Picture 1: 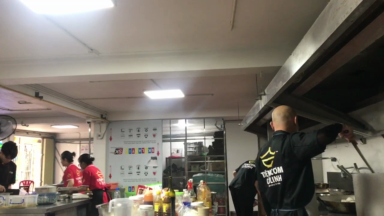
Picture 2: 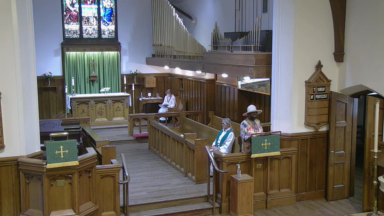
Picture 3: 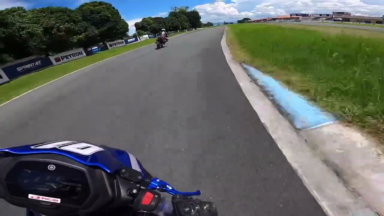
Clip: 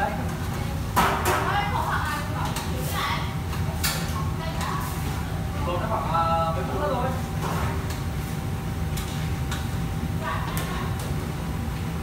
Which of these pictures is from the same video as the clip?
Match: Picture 1